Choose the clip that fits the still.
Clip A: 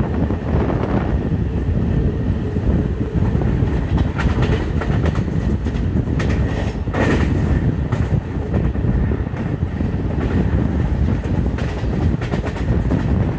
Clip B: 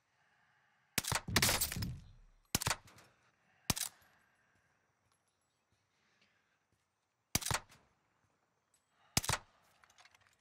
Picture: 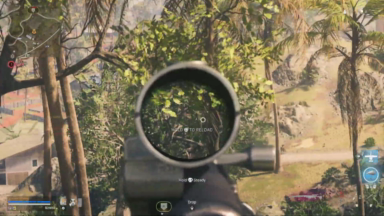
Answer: B